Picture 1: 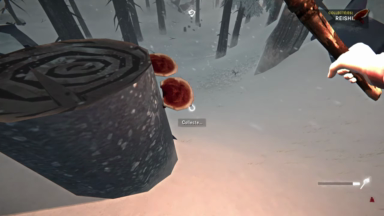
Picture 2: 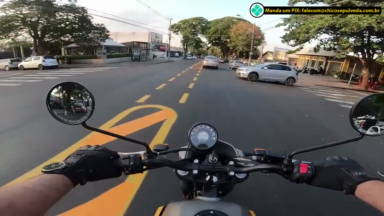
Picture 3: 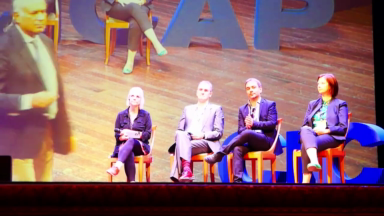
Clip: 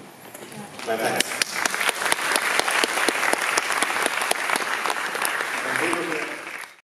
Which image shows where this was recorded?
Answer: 3